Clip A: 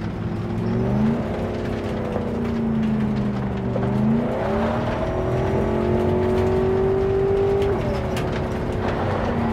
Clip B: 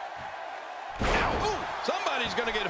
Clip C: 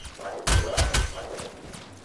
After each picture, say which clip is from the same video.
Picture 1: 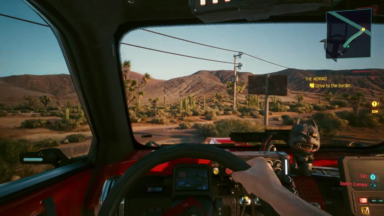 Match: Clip A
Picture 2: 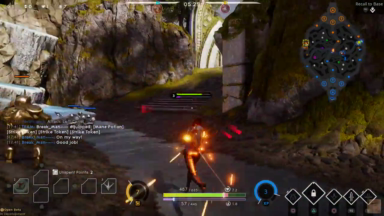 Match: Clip C